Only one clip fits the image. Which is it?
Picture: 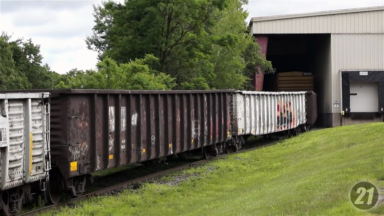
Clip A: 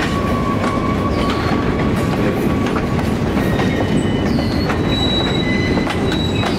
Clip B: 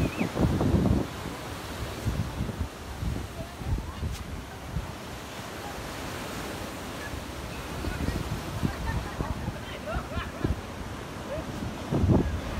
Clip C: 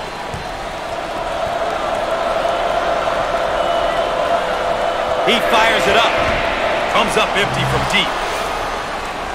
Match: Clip A